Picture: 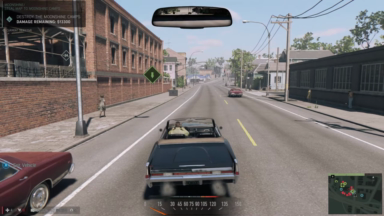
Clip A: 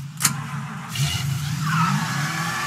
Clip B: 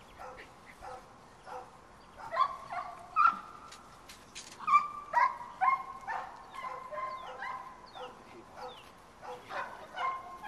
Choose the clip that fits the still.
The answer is A